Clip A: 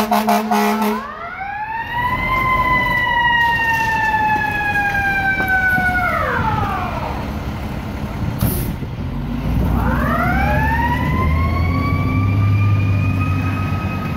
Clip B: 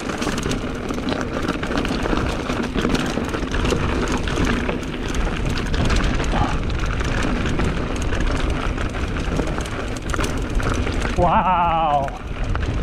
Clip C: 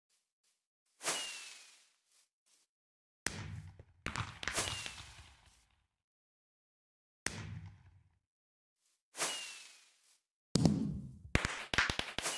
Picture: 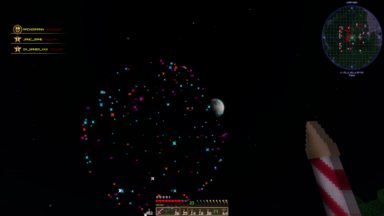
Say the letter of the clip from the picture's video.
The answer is C